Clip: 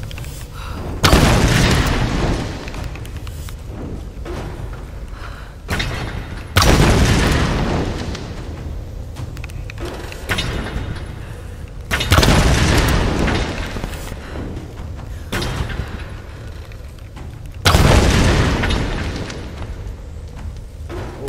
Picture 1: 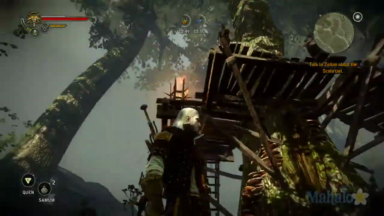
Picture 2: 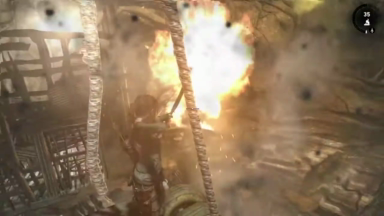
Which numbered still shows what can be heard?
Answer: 2